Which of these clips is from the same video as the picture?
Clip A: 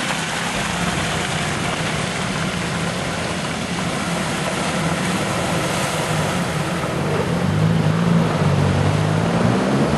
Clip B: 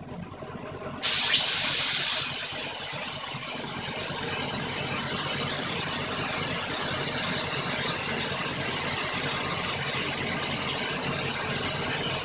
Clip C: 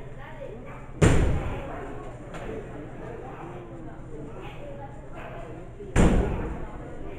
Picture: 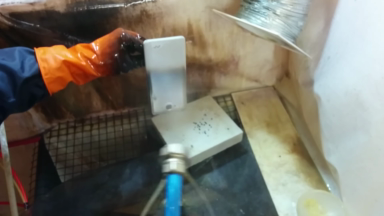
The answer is B